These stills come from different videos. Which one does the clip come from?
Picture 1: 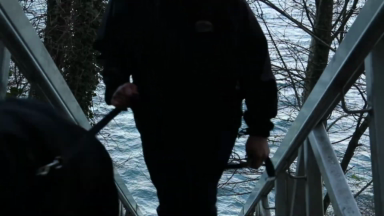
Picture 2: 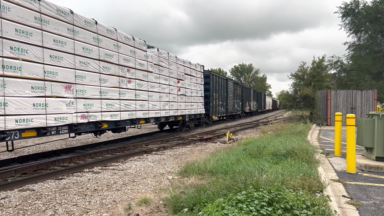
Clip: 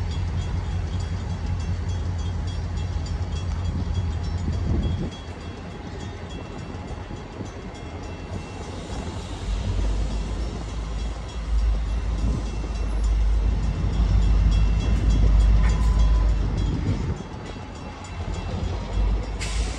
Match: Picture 2